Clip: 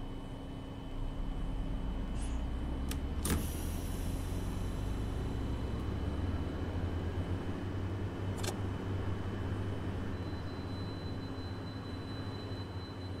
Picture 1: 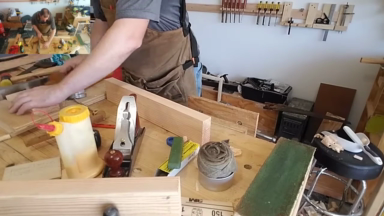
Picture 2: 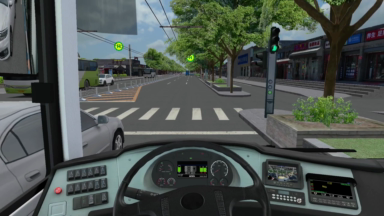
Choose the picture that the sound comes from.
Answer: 2